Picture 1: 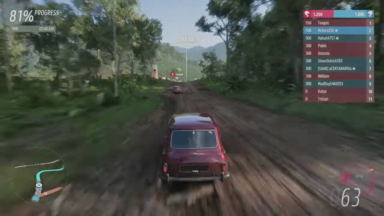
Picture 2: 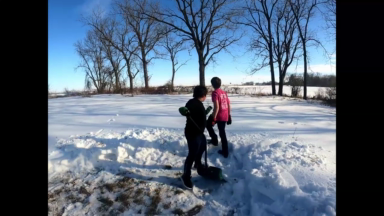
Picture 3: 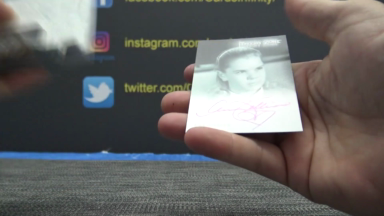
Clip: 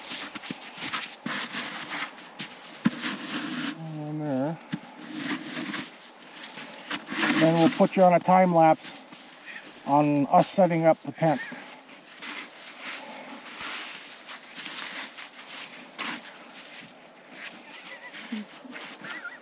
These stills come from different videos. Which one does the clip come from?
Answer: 2